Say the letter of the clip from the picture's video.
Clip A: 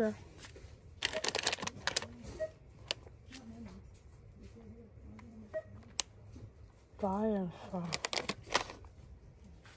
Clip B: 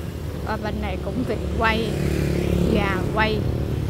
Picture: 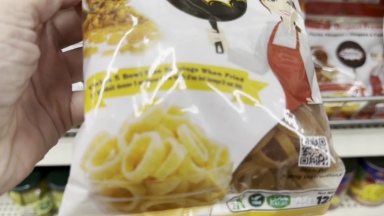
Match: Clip A